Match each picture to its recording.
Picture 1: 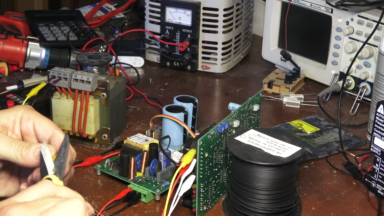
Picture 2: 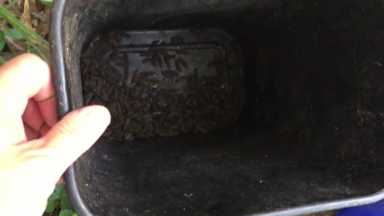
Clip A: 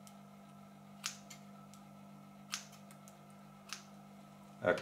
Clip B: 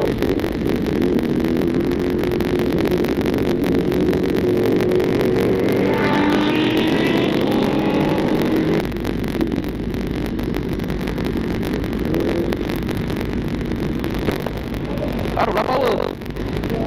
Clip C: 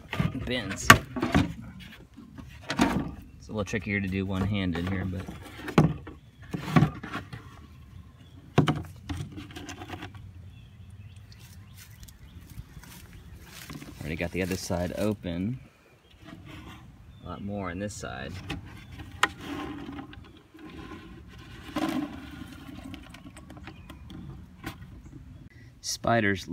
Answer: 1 A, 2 C